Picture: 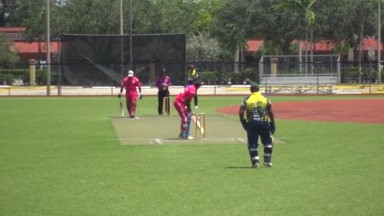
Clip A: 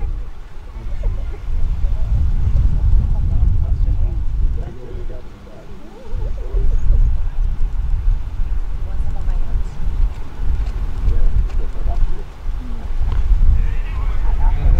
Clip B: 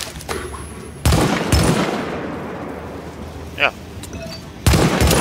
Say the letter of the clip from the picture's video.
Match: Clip A